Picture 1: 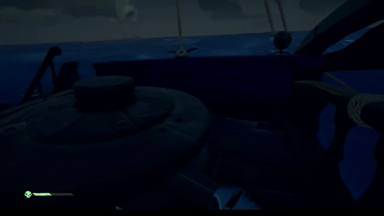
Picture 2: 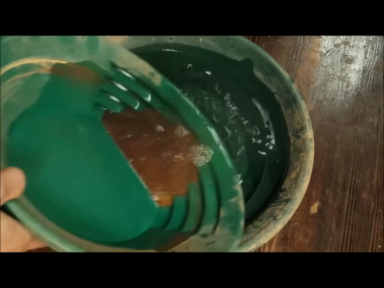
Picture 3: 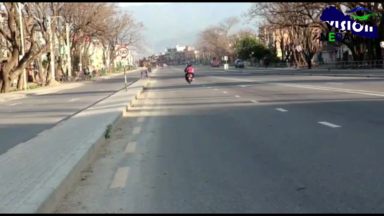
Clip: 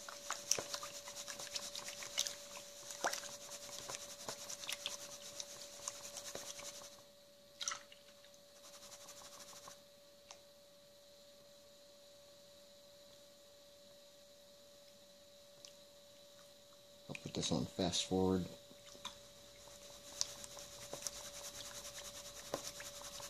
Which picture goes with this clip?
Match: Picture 2